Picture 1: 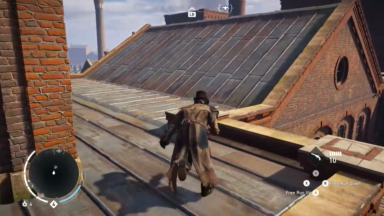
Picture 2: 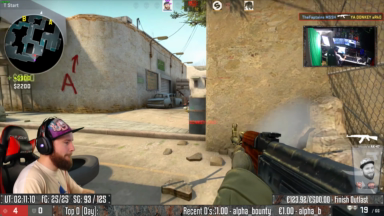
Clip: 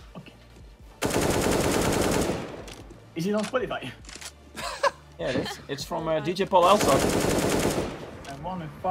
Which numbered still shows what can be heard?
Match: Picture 2